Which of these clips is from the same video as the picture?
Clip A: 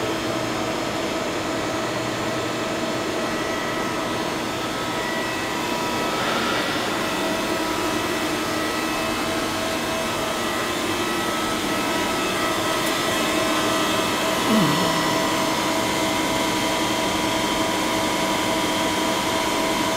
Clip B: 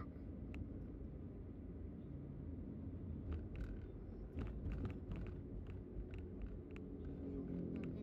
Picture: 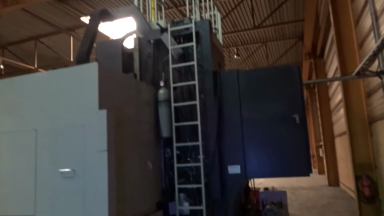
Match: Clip A